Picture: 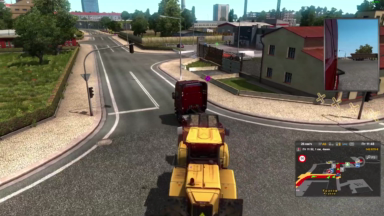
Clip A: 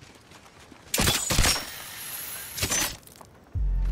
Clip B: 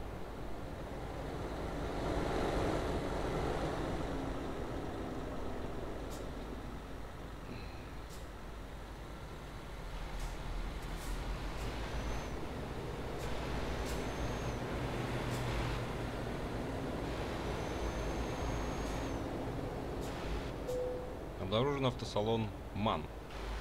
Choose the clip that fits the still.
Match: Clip B